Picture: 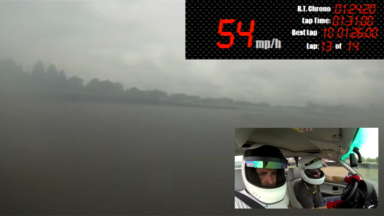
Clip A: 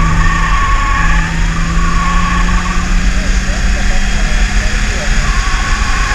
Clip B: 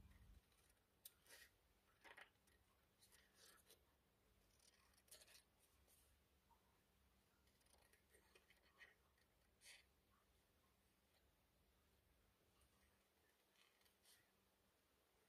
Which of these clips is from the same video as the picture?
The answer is A